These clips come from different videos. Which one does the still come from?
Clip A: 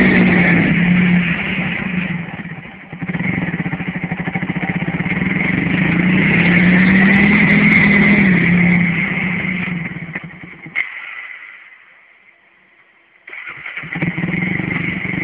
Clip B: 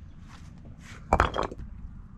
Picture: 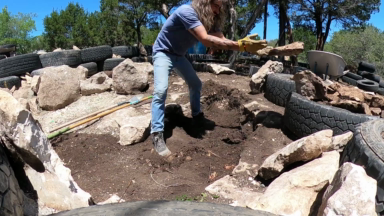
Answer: B